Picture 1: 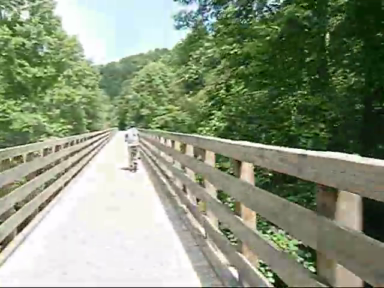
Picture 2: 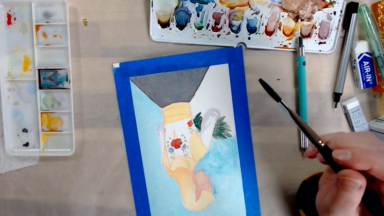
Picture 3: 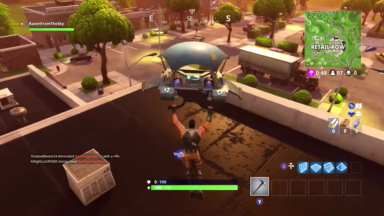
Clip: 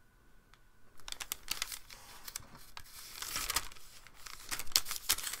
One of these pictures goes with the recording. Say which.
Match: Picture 2